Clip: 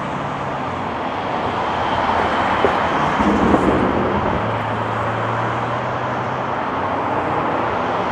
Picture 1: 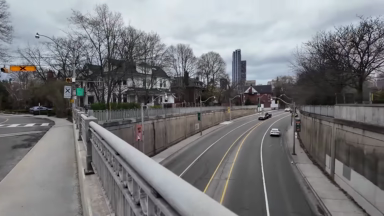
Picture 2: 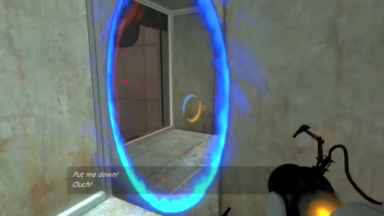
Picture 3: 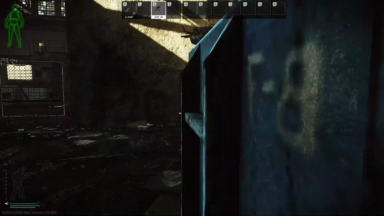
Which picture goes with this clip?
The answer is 1